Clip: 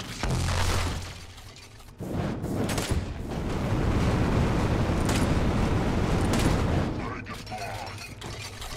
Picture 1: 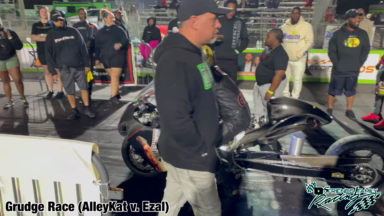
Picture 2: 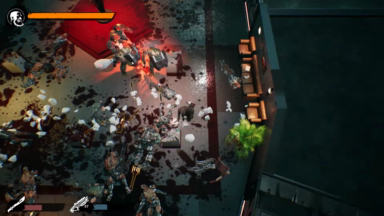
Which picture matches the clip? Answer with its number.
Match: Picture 2